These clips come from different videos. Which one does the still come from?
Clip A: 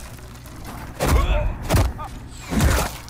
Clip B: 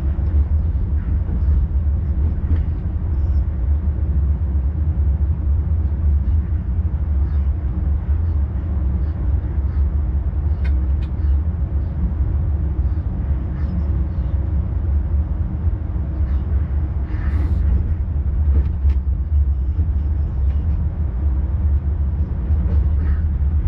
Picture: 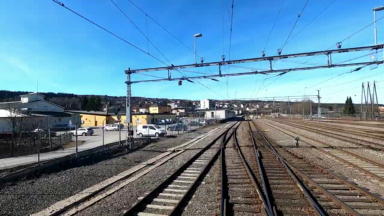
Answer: B